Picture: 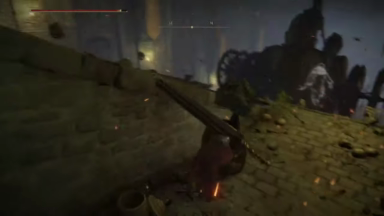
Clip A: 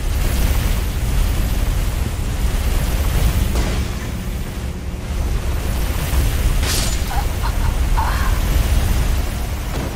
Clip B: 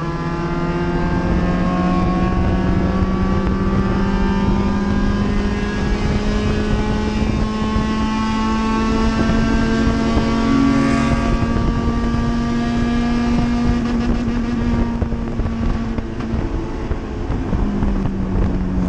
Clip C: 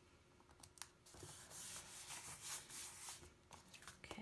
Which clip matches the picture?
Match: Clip A